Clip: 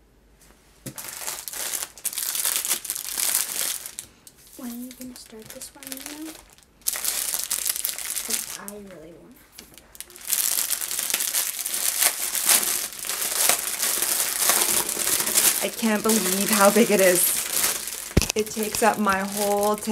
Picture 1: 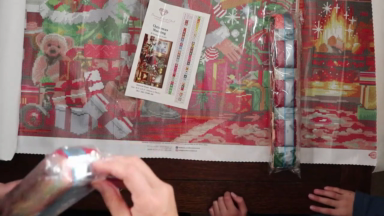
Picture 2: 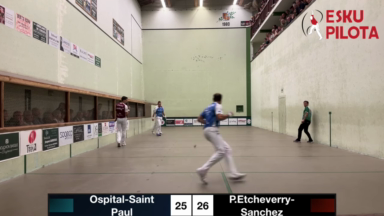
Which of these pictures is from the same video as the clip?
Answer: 1